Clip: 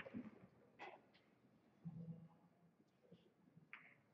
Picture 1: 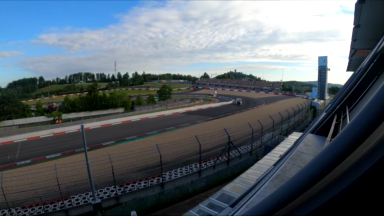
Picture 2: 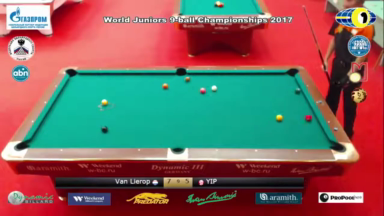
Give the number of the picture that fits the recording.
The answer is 2